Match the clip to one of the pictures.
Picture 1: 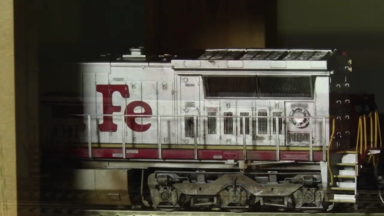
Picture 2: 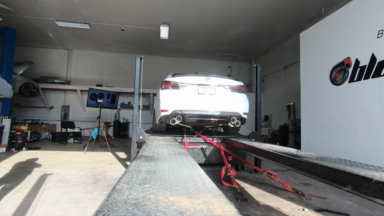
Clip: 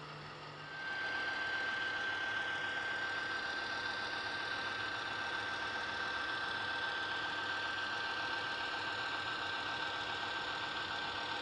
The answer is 1